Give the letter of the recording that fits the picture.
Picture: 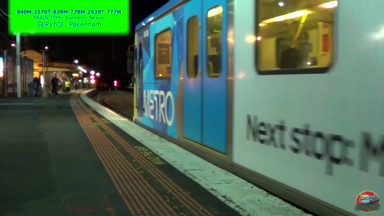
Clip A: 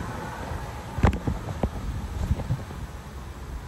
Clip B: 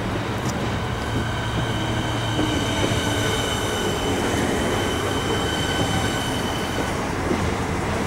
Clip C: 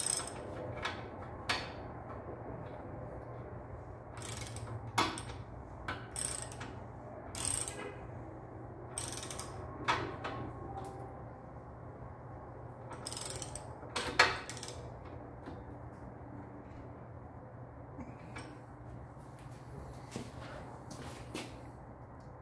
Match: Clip B